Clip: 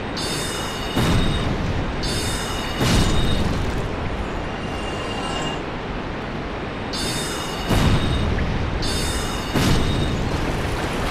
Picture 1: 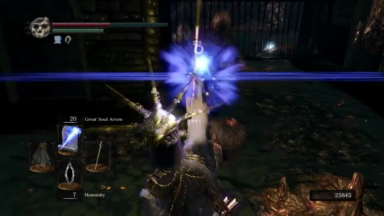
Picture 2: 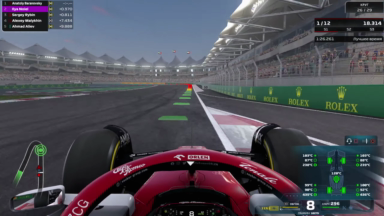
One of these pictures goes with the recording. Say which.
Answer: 1